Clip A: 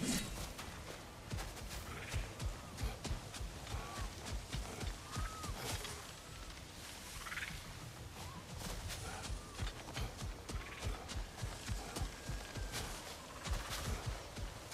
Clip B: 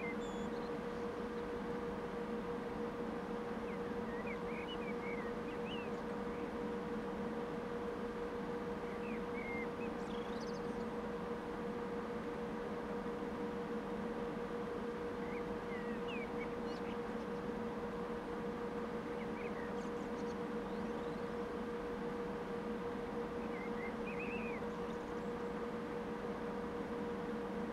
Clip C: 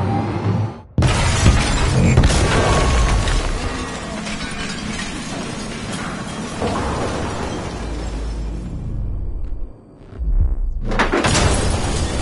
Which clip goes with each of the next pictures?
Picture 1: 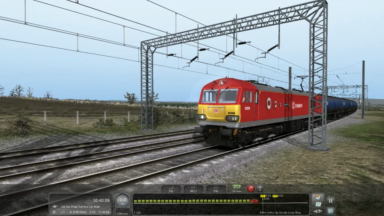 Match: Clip B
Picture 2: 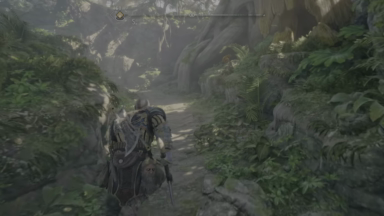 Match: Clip A